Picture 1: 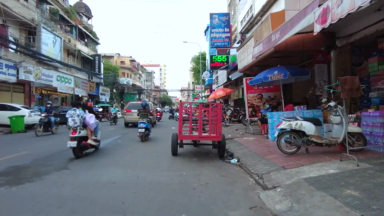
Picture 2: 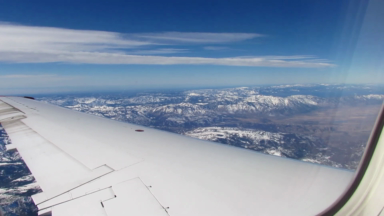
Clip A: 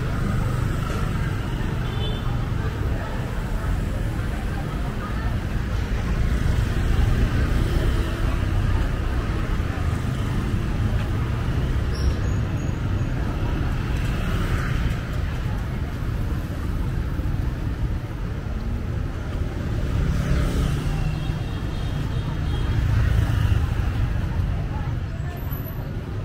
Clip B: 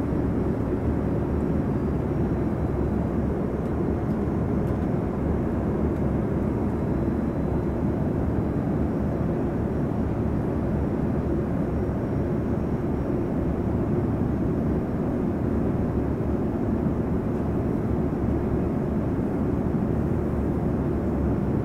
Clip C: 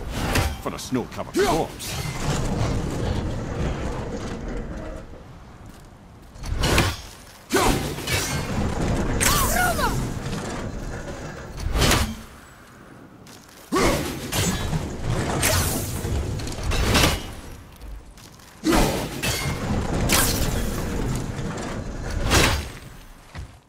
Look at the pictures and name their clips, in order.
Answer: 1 A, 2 B